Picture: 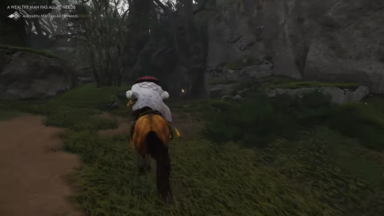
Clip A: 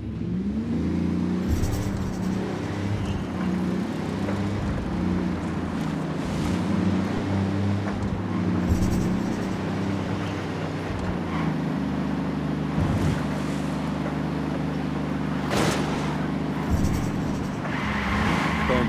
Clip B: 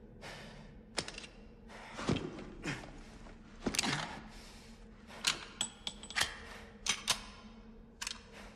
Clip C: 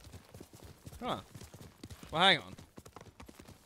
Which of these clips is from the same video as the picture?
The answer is C